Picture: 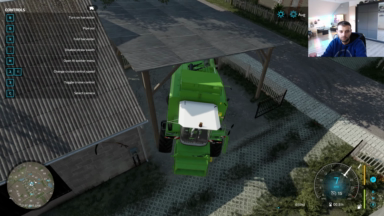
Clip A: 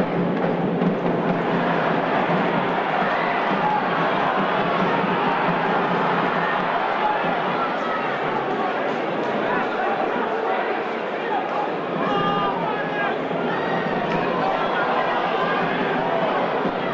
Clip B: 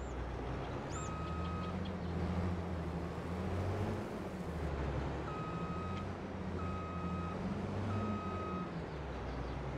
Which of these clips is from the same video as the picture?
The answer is B